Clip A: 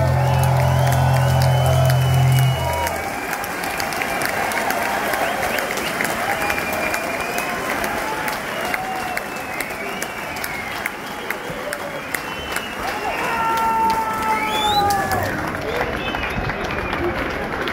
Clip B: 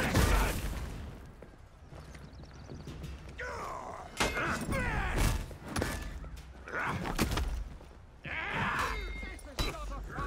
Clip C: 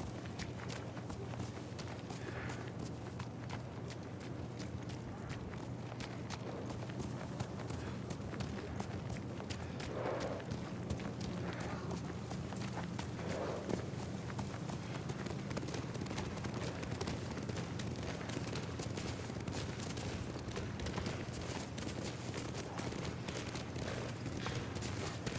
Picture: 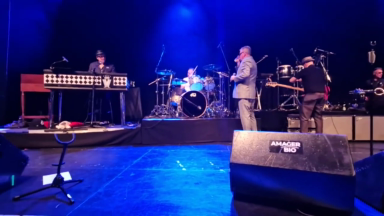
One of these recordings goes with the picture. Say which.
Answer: A